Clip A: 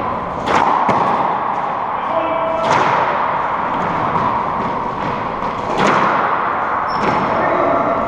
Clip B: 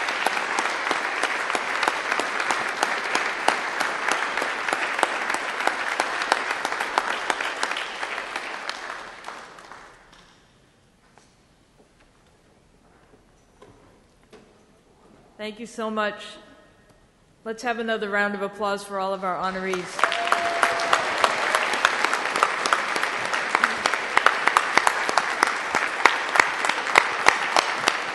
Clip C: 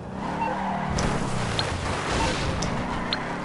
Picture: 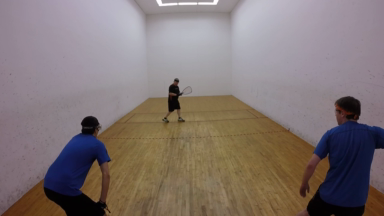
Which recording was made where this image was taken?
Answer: A